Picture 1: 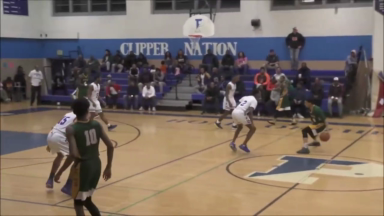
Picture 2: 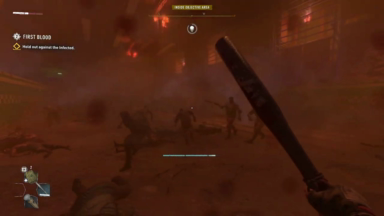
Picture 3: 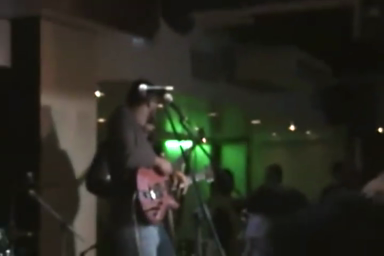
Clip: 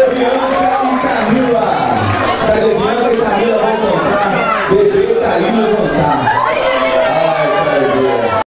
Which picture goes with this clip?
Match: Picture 3